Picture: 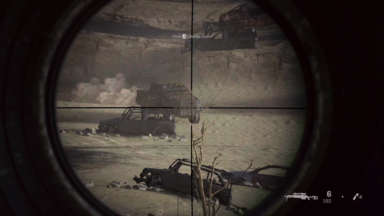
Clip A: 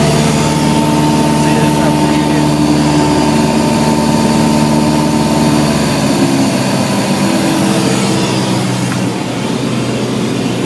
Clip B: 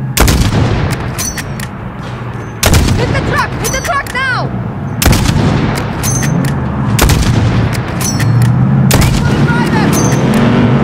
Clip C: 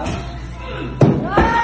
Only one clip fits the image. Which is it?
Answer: B